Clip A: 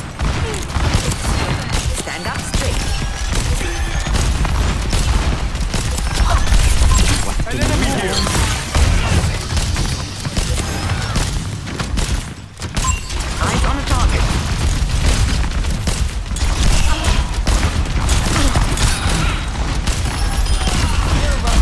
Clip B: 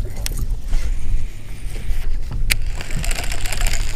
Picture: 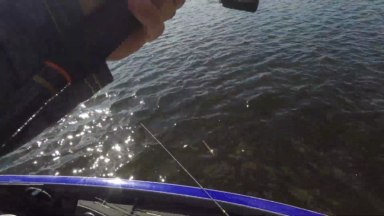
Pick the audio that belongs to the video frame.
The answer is B